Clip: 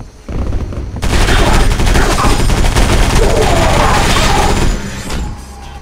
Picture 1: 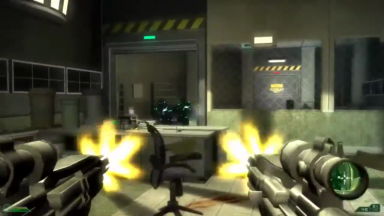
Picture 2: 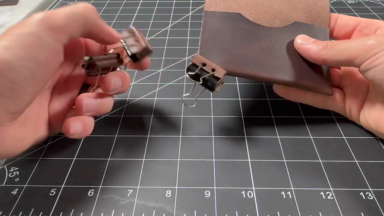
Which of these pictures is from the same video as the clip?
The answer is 1